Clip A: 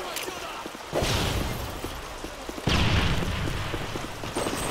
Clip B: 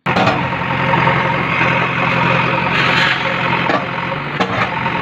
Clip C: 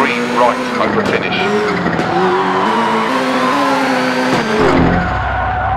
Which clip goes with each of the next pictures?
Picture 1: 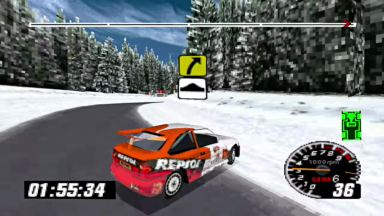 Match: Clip C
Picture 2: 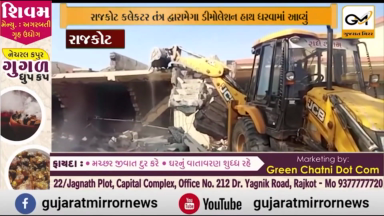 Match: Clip B